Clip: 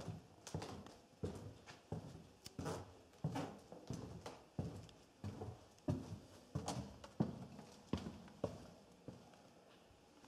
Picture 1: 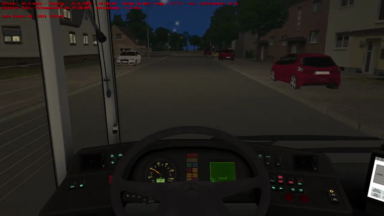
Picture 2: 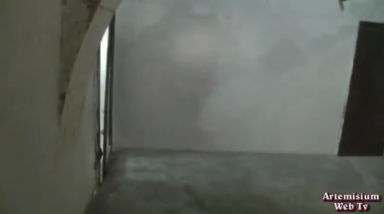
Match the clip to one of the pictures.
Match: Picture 2